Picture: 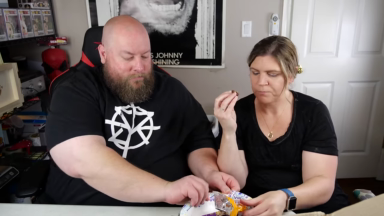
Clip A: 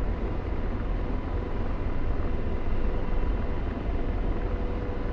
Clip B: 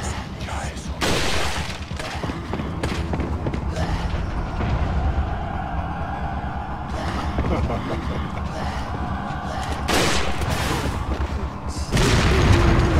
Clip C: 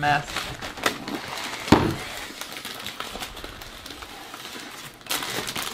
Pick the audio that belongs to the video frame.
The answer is C